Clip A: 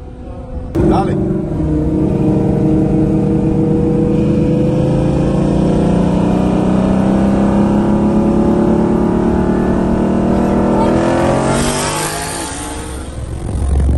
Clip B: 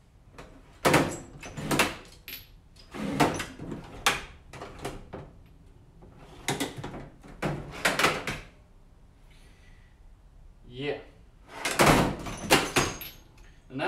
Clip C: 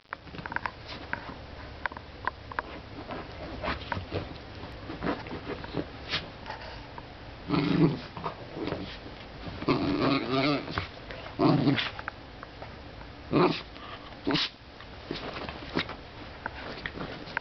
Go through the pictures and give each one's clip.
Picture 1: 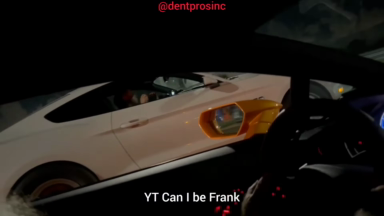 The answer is A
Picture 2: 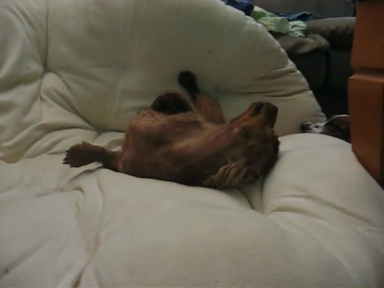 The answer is C